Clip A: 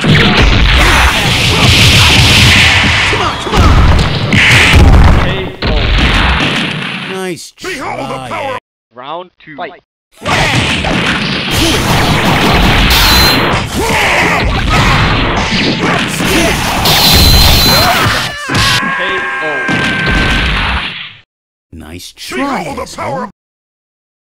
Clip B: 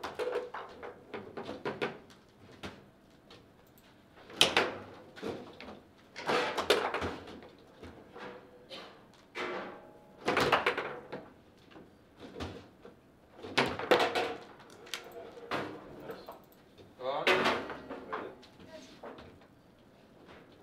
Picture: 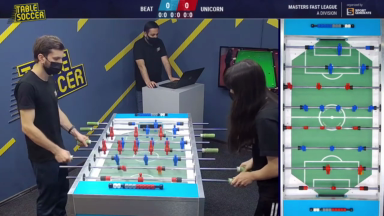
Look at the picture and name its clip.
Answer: B